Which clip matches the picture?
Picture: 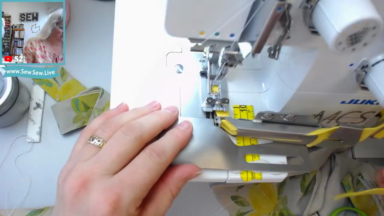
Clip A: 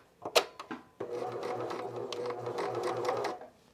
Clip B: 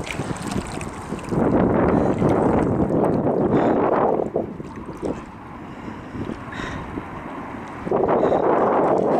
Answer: A